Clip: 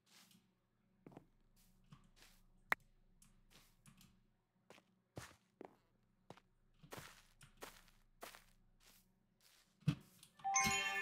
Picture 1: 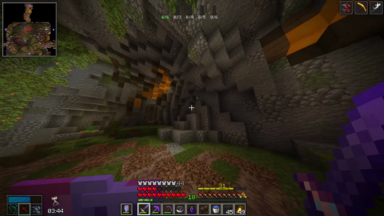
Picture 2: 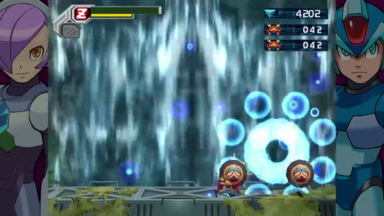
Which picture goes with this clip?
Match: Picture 1